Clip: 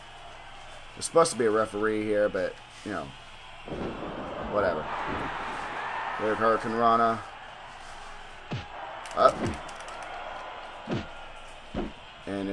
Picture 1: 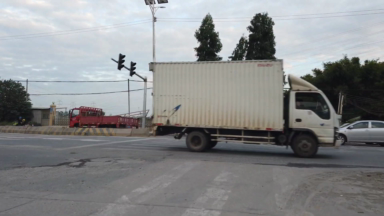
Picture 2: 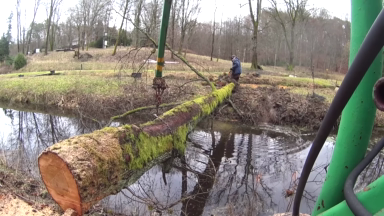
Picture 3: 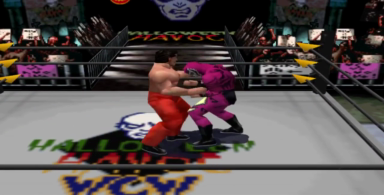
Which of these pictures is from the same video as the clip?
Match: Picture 3